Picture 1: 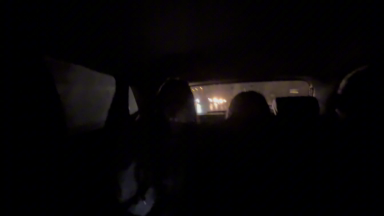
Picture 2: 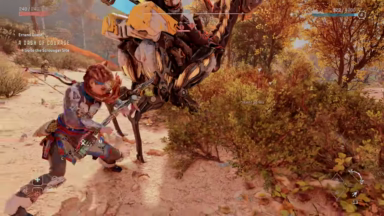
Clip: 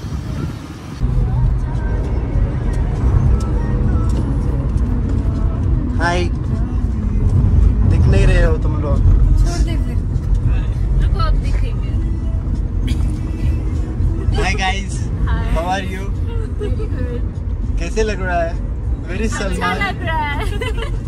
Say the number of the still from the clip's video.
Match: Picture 1